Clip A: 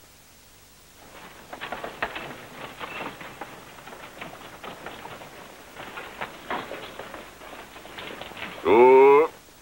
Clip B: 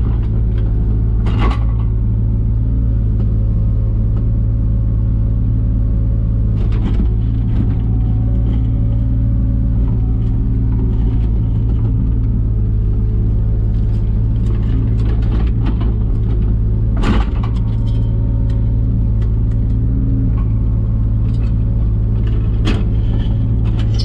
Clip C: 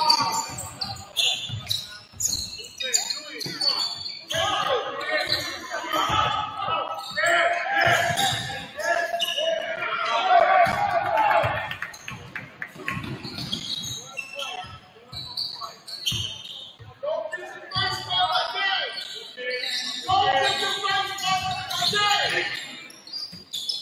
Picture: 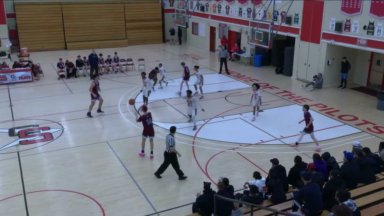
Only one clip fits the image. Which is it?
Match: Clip C